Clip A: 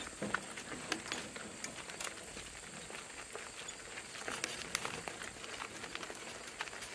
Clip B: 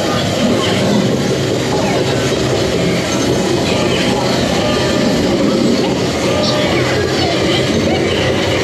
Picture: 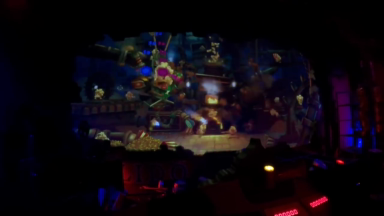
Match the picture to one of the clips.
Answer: B